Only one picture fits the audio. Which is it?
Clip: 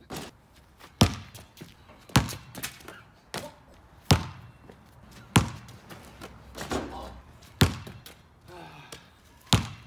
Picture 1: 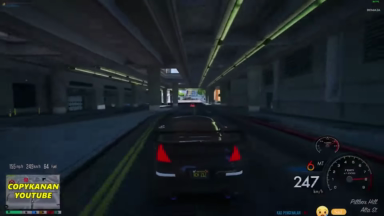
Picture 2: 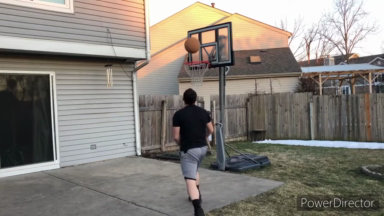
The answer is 2